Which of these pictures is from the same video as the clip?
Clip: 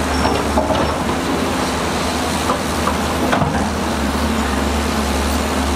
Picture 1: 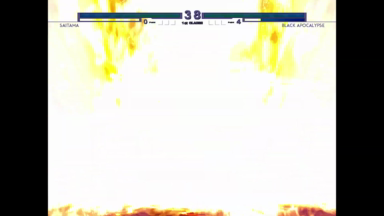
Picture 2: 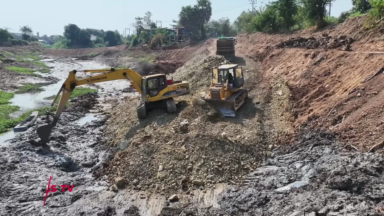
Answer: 2